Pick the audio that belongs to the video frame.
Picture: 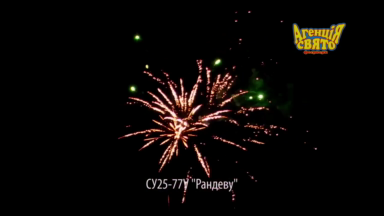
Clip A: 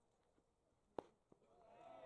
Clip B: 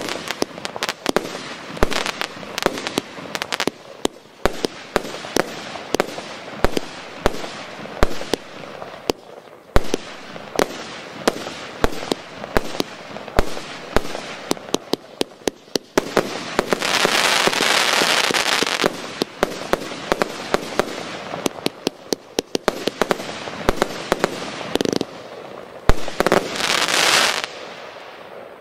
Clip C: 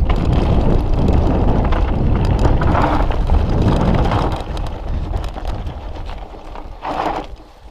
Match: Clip B